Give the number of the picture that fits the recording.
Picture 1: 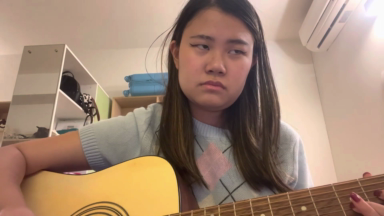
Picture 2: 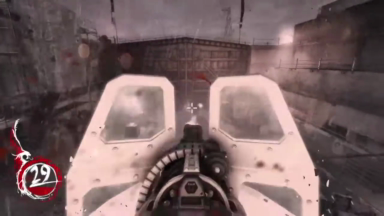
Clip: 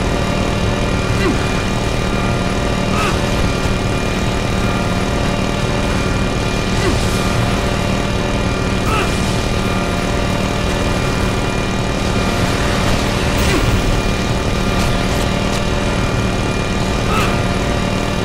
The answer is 2